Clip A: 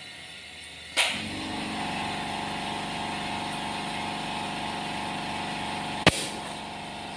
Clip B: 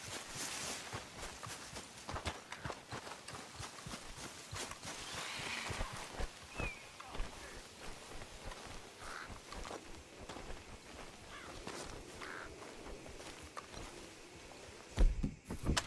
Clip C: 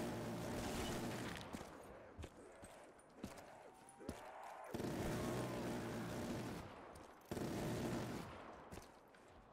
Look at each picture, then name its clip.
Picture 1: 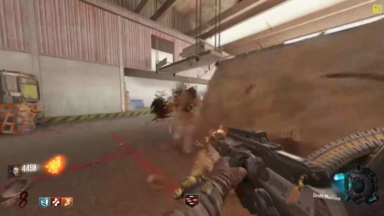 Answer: C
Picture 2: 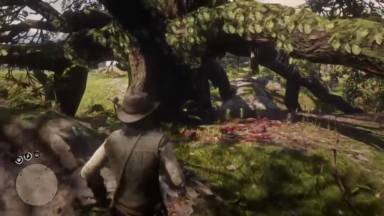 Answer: B